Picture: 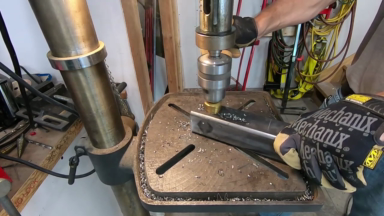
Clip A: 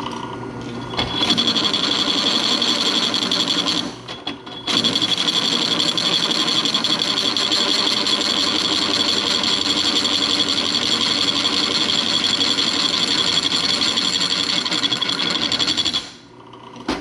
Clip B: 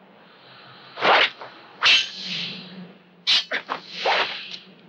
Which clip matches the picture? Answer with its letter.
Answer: A